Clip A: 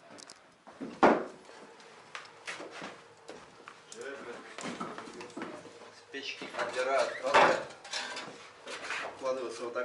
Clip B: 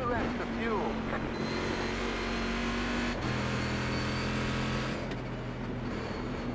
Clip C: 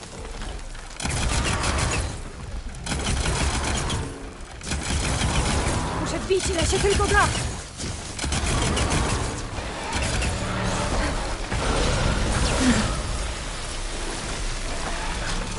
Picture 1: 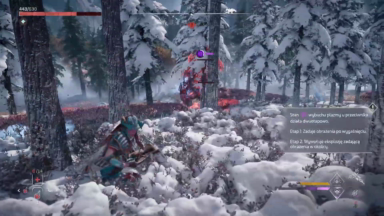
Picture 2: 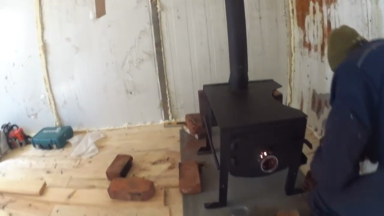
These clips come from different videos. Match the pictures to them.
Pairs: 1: C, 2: A